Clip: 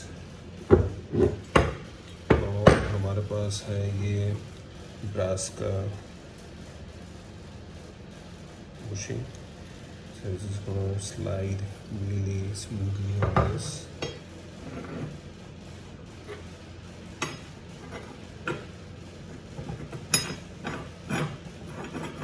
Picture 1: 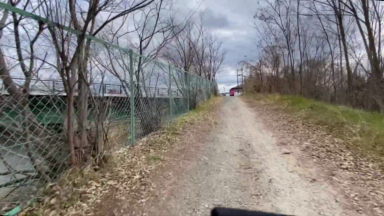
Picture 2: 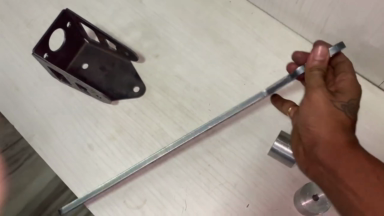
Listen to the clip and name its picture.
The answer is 2